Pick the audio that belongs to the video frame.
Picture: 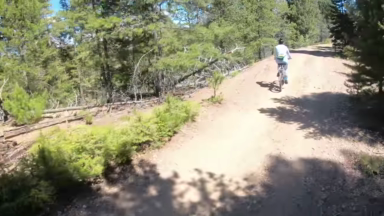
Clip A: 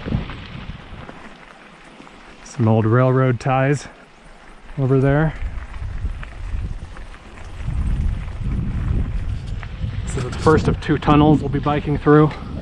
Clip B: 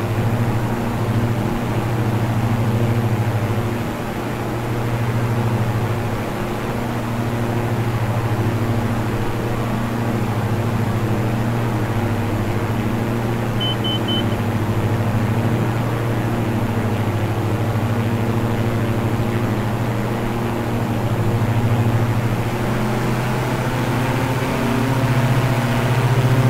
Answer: A